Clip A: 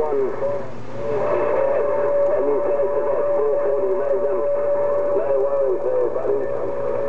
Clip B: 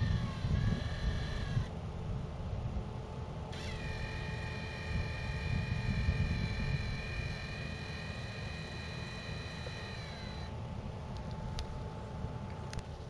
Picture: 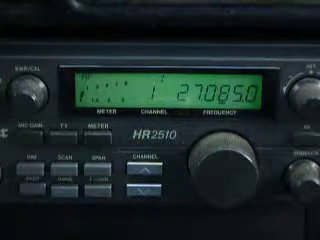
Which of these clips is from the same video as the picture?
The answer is A